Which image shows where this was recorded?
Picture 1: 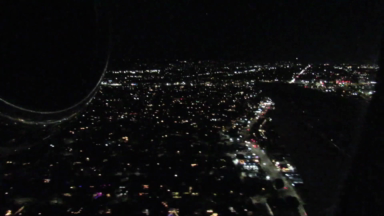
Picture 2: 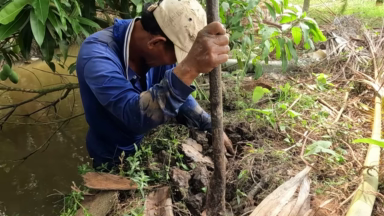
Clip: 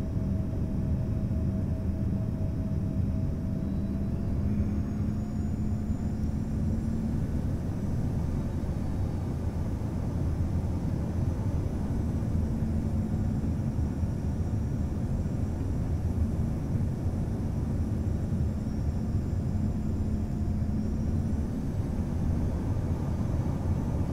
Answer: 1